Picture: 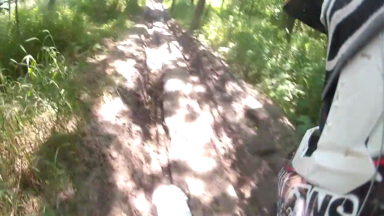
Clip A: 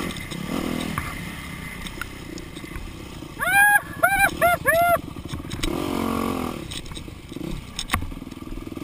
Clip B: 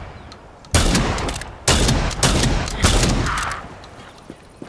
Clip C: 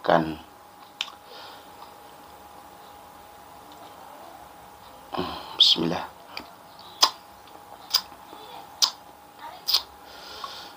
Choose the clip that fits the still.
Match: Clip A